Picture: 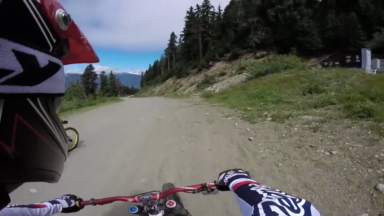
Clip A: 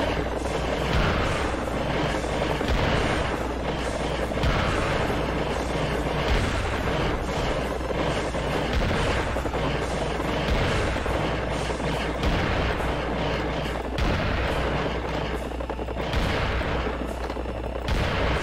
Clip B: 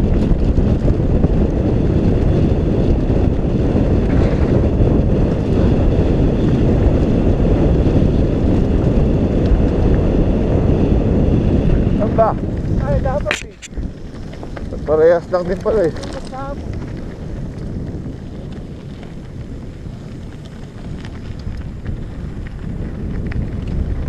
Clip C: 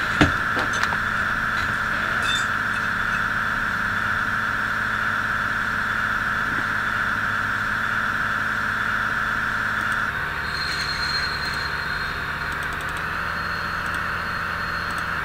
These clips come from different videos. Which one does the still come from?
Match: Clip B